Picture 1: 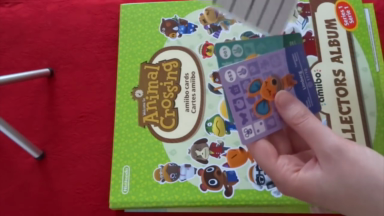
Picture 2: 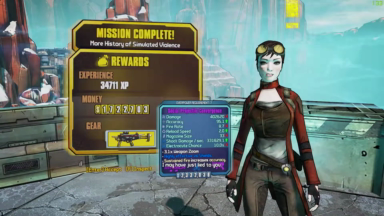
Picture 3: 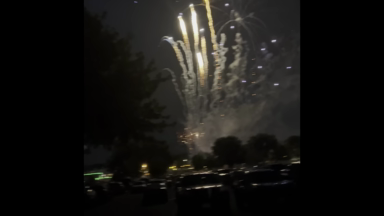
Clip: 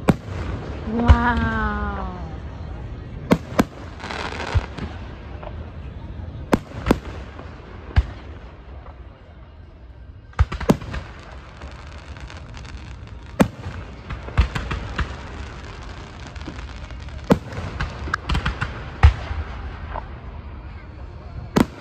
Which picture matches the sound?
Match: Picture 3